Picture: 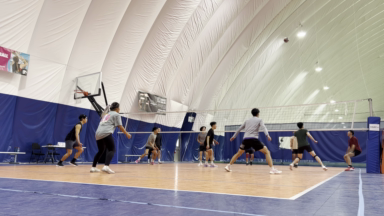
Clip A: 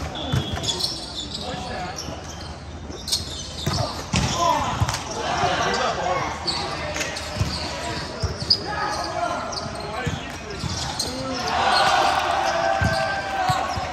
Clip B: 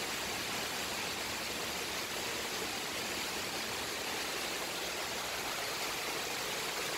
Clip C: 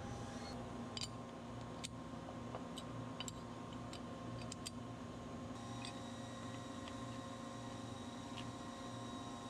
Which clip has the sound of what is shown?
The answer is A